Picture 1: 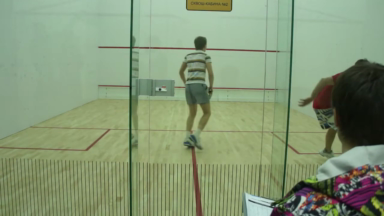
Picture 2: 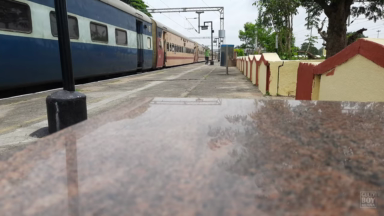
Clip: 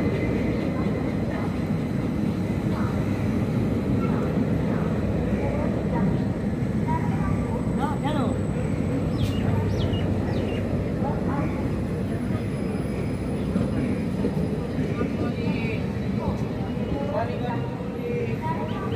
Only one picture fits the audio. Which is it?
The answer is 2